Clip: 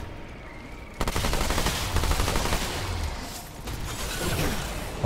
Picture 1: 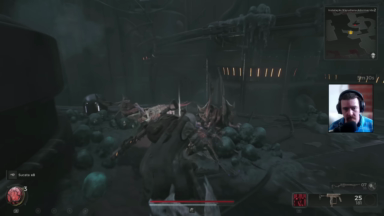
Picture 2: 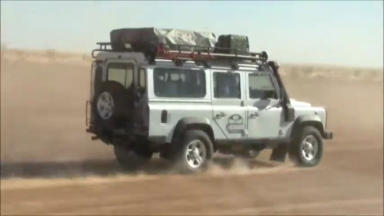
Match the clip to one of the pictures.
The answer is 1